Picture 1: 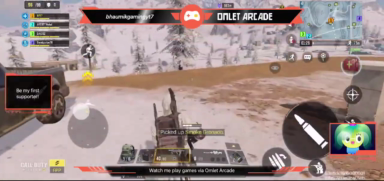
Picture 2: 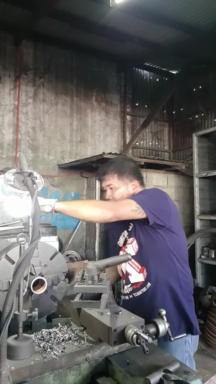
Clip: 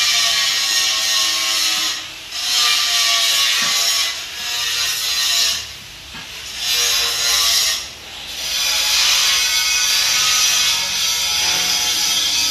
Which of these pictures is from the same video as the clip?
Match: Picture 2